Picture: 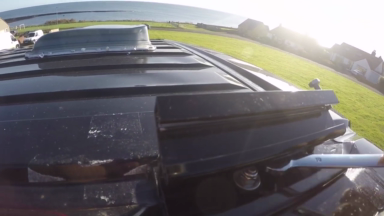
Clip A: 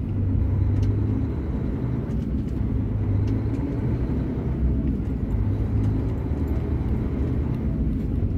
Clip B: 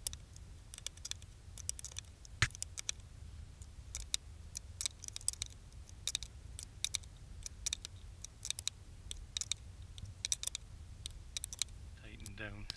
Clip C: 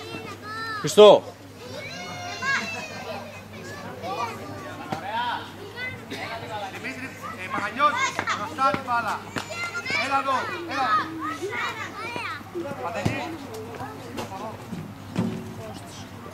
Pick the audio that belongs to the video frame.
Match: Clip B